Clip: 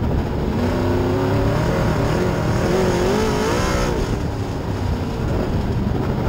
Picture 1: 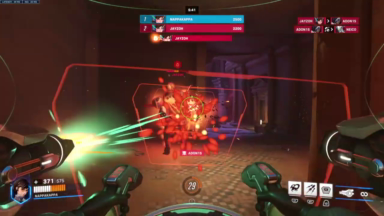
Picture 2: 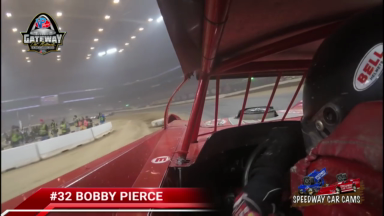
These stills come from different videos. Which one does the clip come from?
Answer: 2